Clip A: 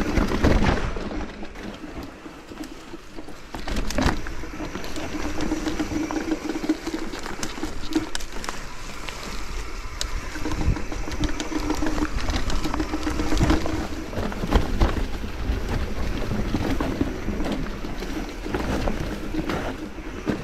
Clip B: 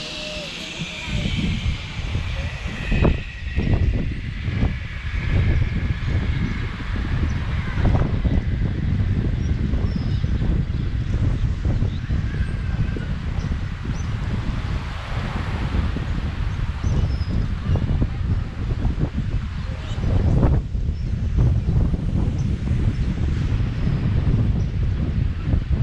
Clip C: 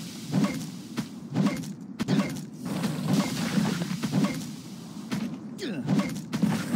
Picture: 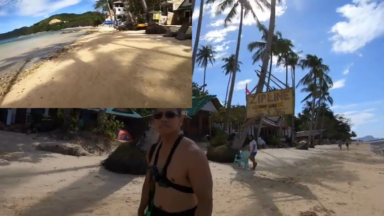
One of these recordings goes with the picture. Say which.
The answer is B